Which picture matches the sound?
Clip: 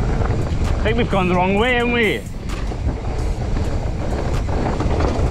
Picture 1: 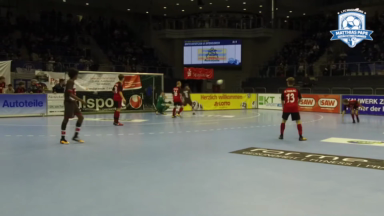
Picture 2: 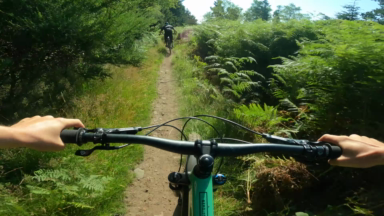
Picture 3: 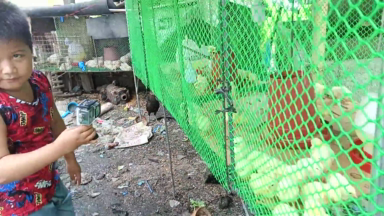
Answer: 2